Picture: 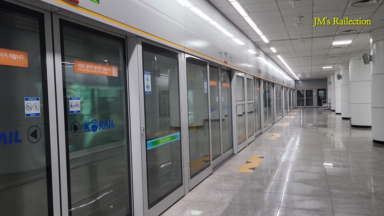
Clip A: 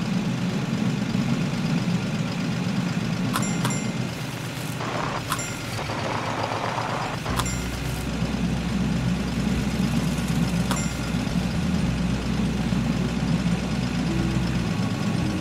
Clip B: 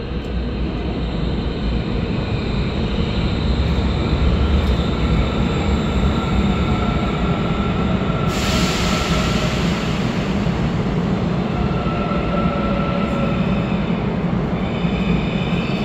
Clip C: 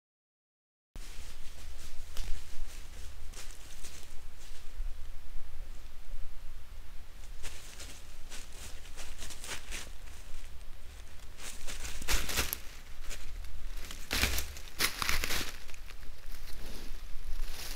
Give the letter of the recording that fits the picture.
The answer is B